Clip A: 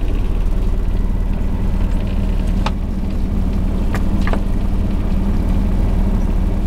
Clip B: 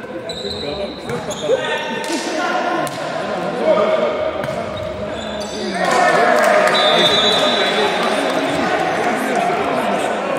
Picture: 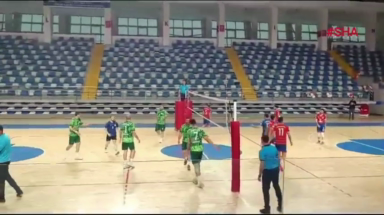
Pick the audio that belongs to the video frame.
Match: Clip B